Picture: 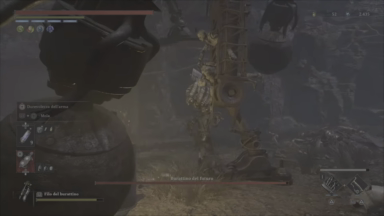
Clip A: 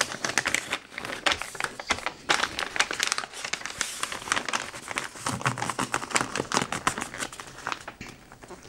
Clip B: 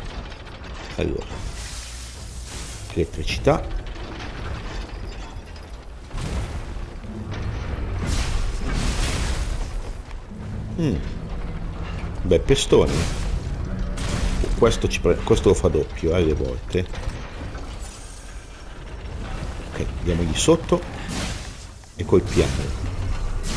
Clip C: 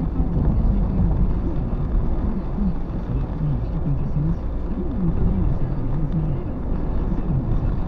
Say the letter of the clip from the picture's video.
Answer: B